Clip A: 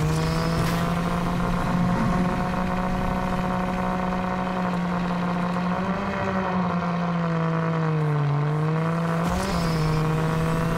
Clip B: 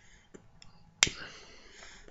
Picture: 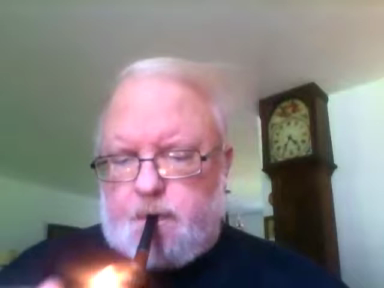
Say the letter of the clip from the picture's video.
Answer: B